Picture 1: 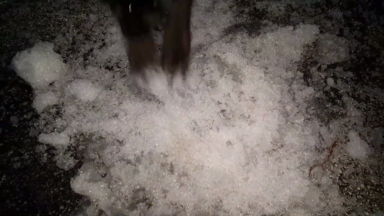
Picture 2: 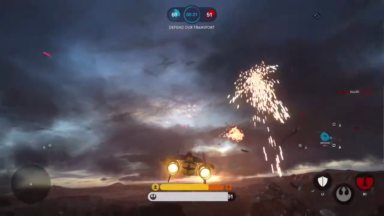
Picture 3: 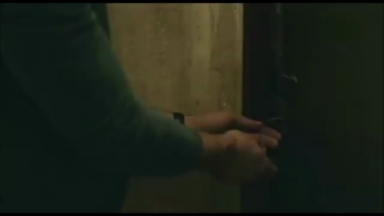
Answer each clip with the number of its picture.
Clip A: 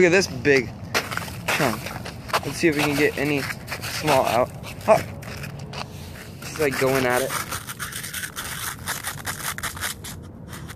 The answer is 1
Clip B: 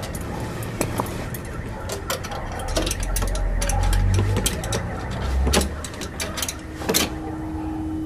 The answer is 3